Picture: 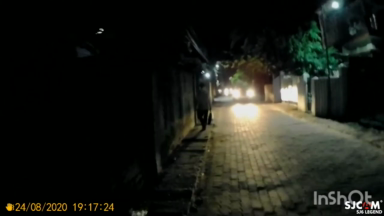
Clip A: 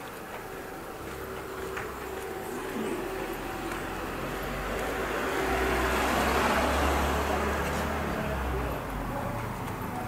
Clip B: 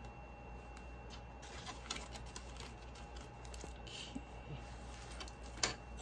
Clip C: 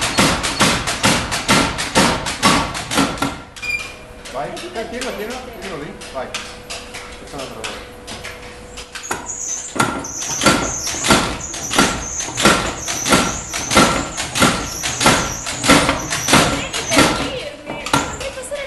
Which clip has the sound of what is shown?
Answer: A